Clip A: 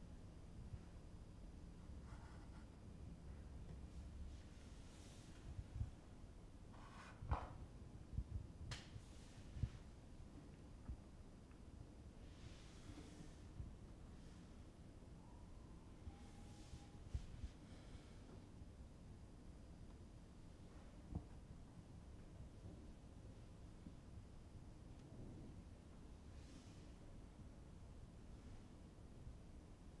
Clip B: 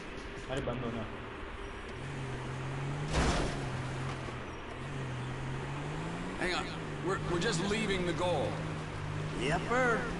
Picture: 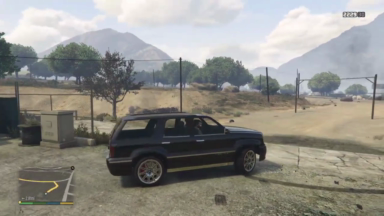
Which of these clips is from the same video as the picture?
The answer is B